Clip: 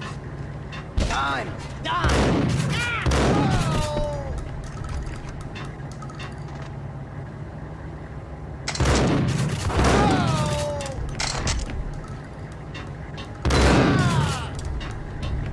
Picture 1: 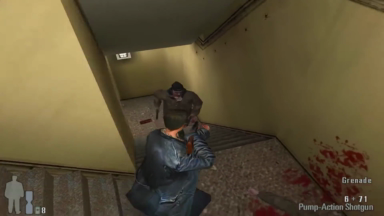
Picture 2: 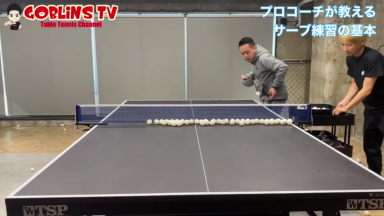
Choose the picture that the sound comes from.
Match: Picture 1